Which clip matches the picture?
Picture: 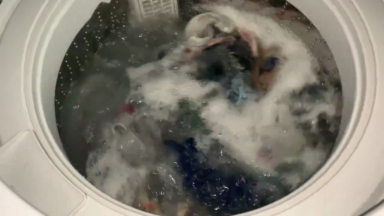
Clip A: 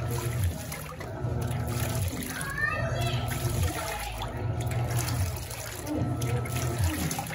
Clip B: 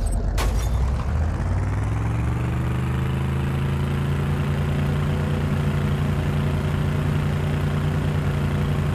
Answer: A